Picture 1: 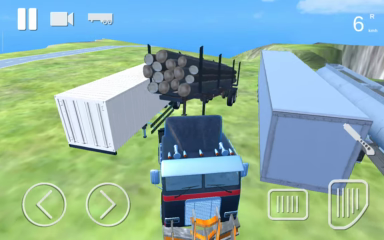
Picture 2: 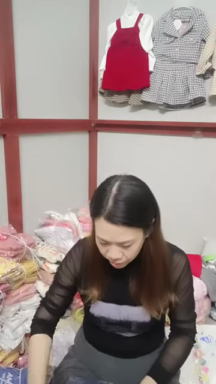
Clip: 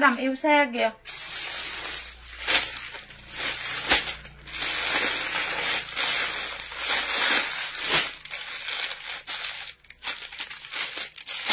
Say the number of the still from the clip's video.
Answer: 2